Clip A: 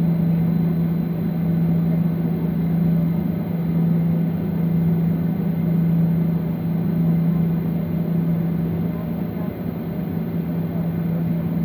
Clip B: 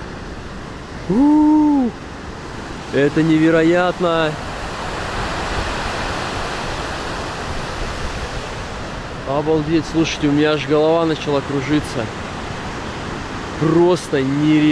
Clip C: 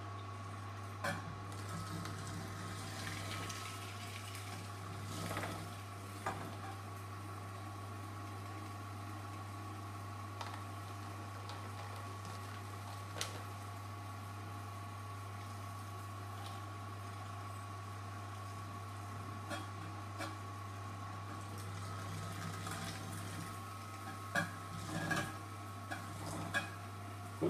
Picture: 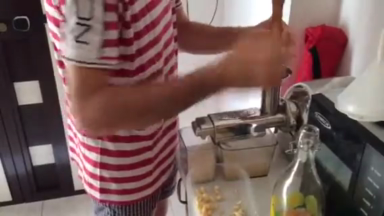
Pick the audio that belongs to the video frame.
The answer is C